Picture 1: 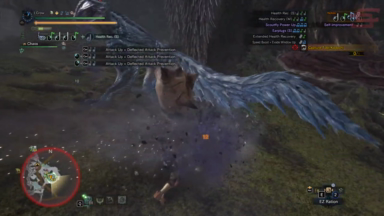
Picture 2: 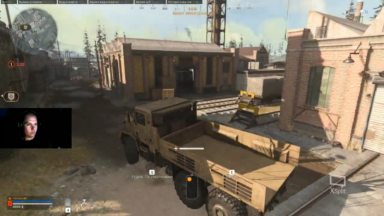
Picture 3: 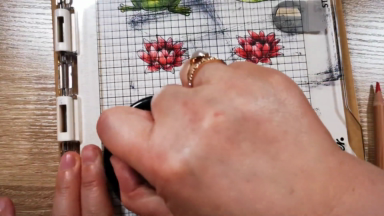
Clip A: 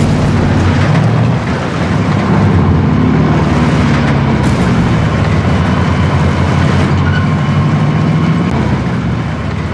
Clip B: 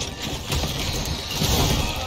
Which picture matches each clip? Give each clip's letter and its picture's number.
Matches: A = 2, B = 1